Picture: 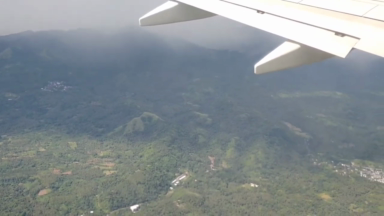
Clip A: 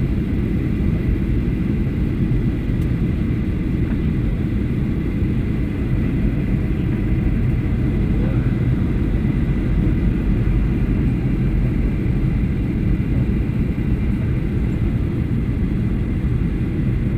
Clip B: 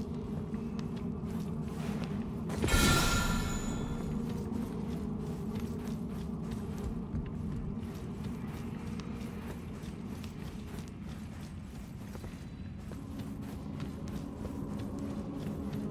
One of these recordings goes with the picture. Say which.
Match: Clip A